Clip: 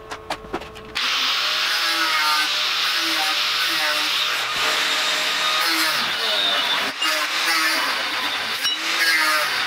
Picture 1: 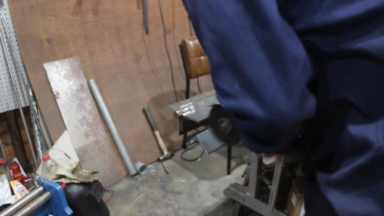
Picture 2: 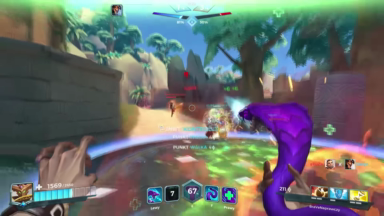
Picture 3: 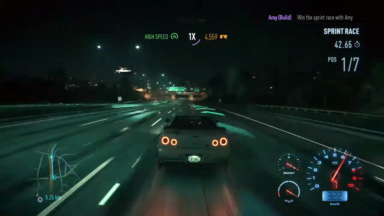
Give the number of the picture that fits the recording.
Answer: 1